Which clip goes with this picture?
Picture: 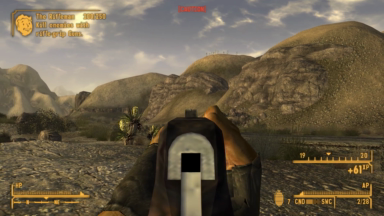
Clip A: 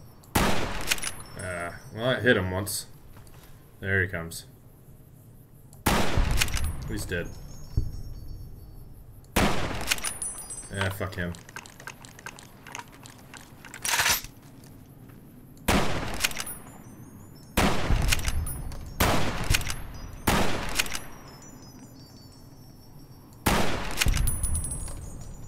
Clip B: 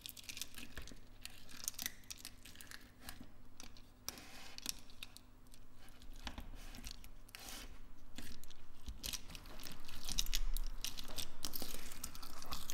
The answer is A